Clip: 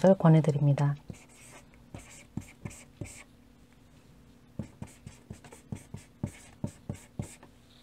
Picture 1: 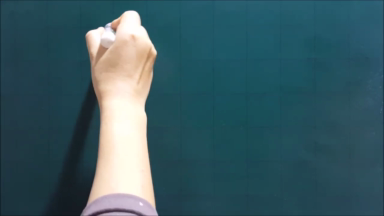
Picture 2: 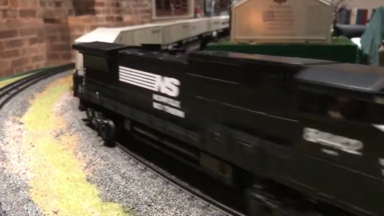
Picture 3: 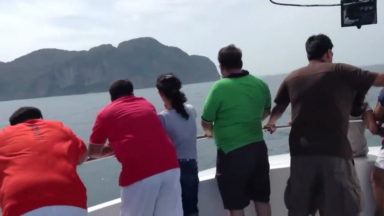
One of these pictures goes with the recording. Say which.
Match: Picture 1